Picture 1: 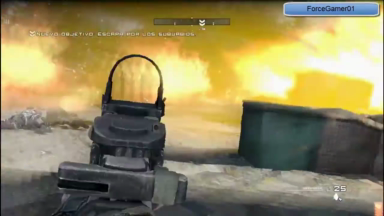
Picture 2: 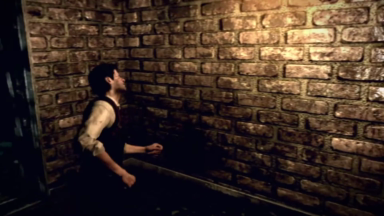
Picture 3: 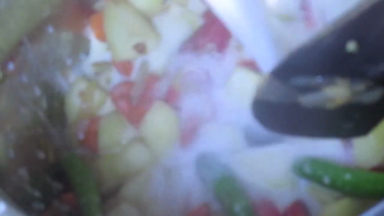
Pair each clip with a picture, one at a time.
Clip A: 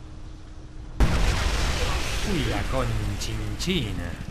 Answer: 1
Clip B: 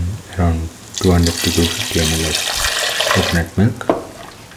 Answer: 3